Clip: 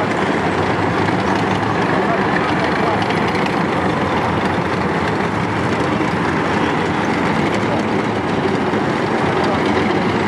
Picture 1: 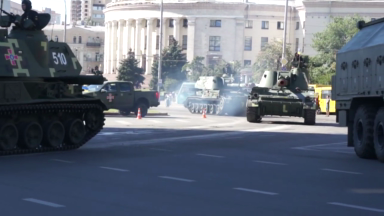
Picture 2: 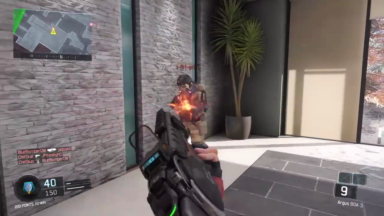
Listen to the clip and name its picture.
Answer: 1